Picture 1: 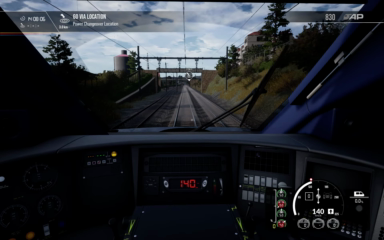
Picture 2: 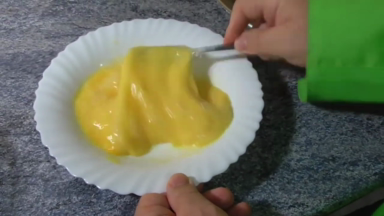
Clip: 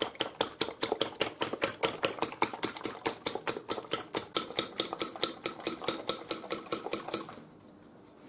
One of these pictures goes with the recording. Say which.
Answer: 2